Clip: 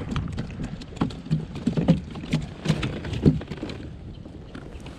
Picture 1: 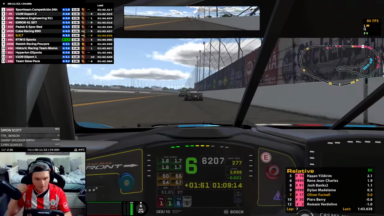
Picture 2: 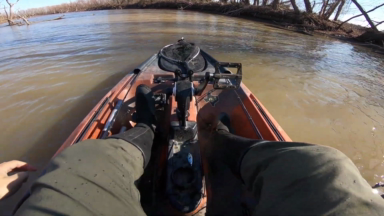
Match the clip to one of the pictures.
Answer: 2